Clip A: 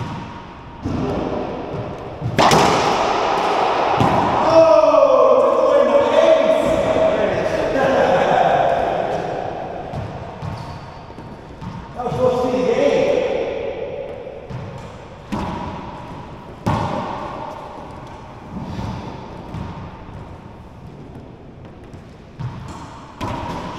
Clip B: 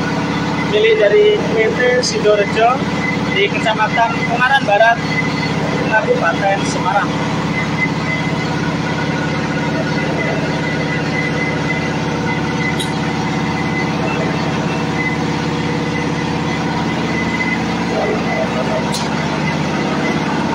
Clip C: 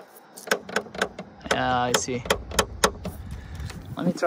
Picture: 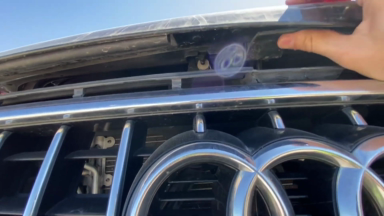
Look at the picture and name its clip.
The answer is C